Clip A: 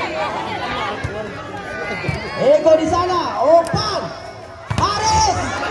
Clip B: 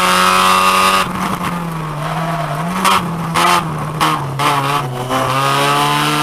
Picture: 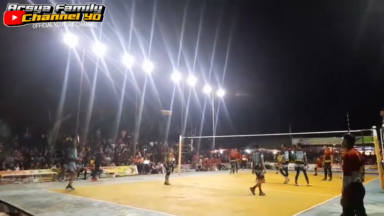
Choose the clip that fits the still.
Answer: A